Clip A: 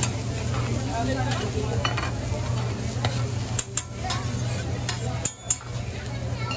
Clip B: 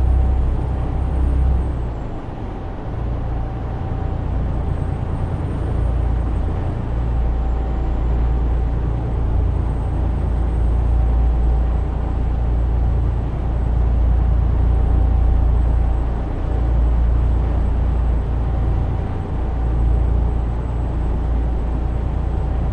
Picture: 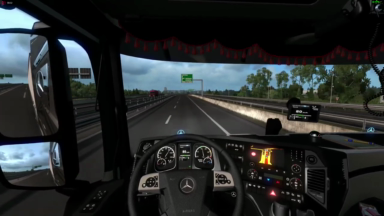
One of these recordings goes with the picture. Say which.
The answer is B